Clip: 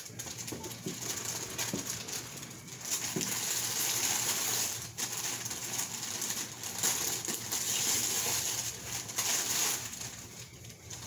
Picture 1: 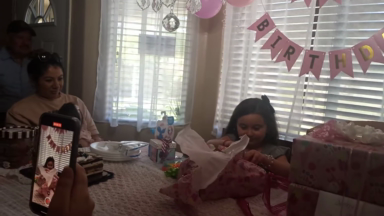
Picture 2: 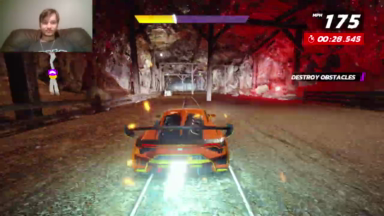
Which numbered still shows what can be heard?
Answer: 1